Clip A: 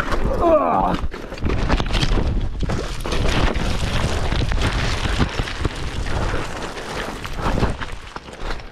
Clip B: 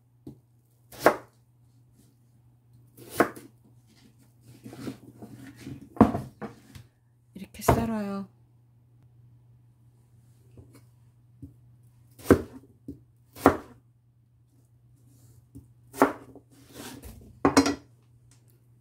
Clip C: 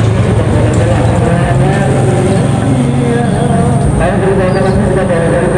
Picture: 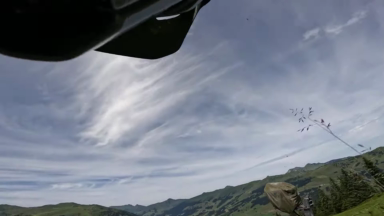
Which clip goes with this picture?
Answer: A